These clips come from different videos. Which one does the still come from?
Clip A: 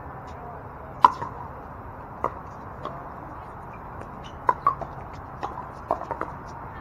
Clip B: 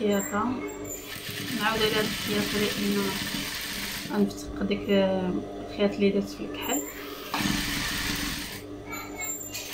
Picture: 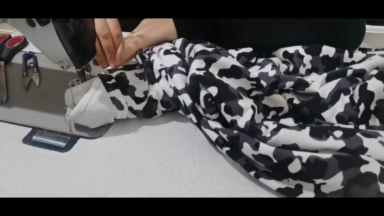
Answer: B